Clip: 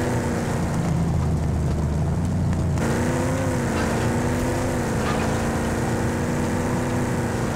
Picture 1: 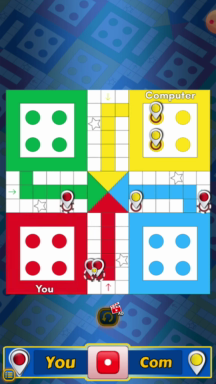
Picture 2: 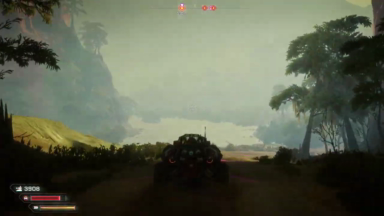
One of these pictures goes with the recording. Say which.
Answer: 2